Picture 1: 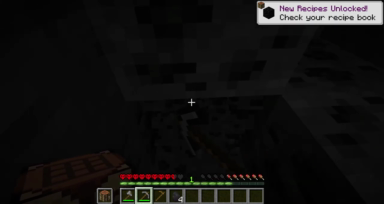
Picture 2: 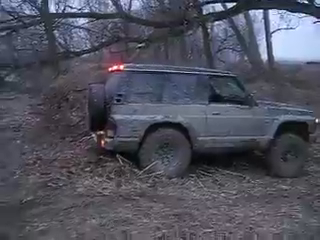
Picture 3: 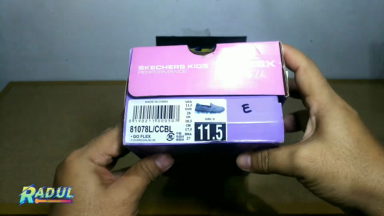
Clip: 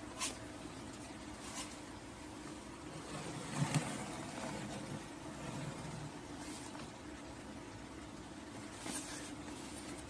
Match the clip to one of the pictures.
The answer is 3